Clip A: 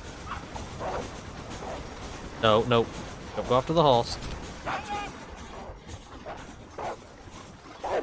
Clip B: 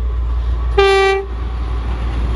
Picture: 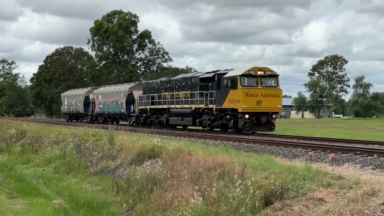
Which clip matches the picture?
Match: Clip B